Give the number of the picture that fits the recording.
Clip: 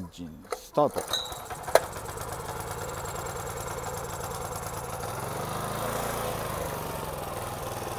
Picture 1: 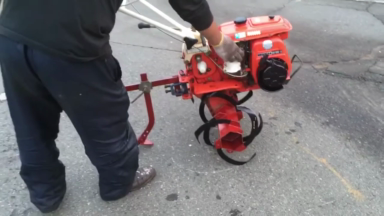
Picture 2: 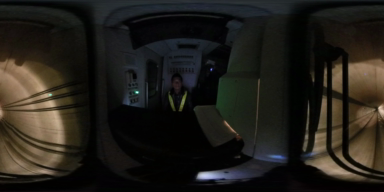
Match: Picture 1